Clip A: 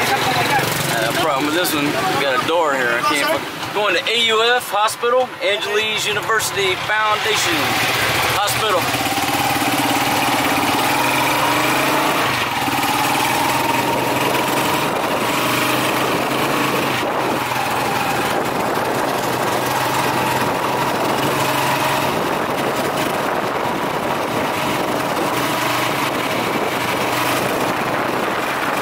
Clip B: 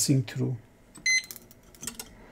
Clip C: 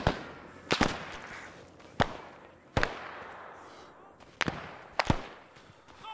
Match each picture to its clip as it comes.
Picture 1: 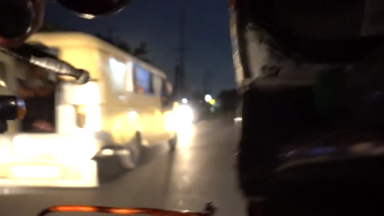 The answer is A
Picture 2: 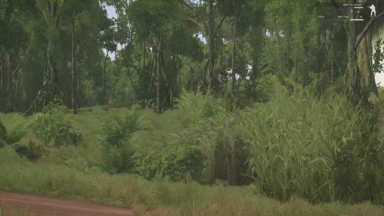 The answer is C